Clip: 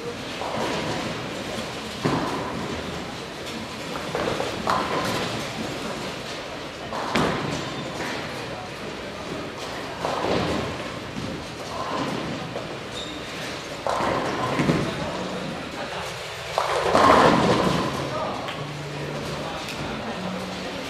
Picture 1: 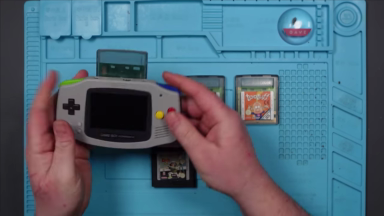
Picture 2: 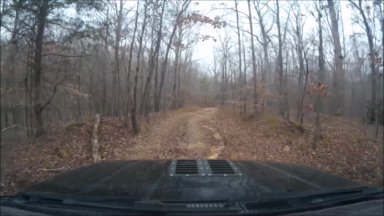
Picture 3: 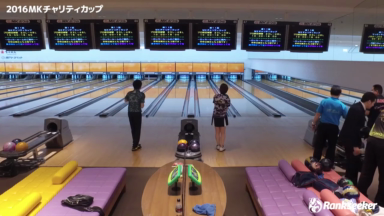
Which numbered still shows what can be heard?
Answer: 3